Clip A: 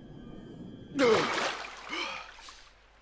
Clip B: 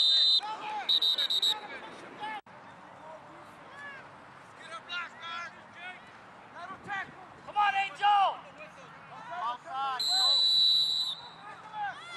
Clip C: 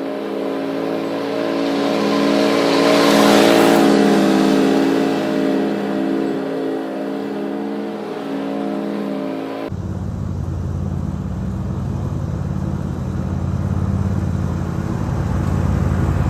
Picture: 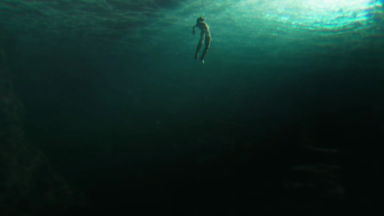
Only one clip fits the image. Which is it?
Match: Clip A